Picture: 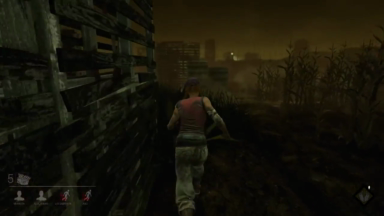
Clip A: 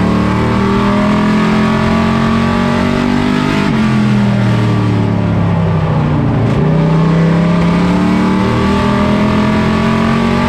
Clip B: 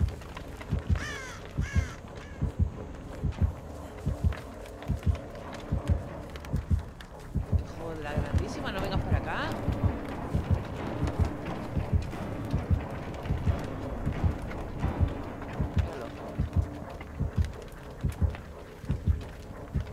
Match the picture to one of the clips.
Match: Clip B